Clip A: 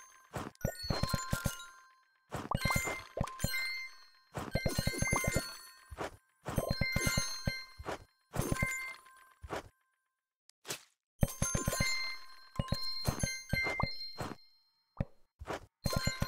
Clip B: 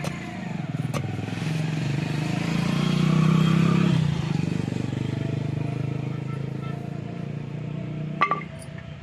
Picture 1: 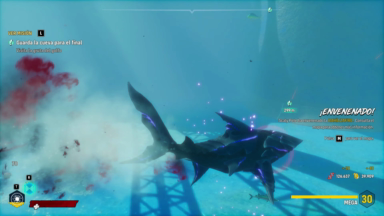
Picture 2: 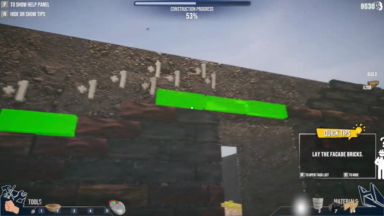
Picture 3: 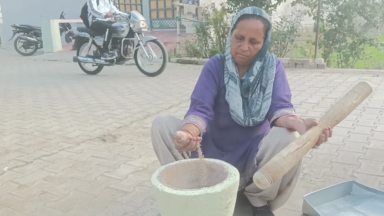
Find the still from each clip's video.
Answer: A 2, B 3